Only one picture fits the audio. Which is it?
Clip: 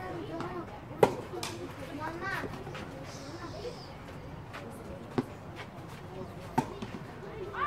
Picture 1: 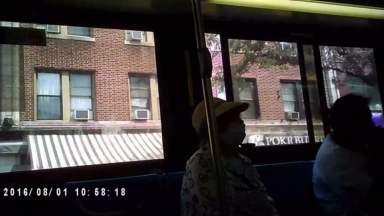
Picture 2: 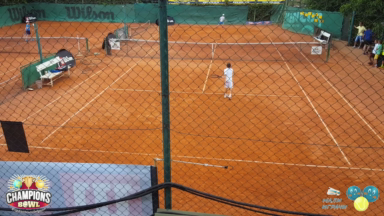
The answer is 2